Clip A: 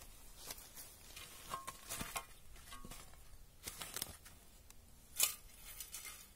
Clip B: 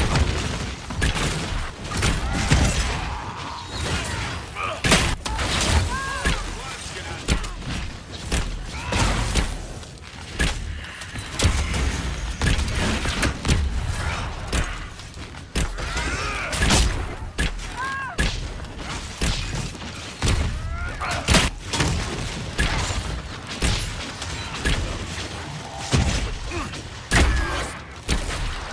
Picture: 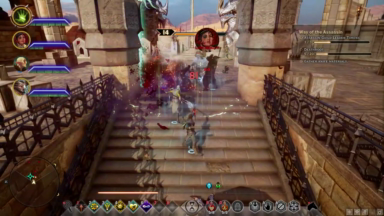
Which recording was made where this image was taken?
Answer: B